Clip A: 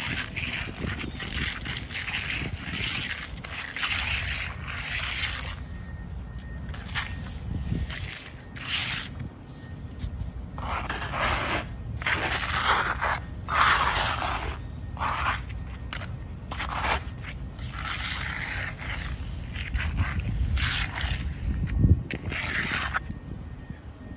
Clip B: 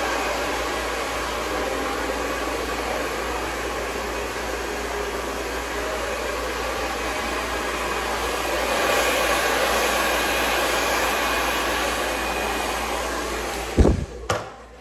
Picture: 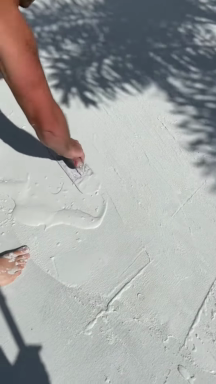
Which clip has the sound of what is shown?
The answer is A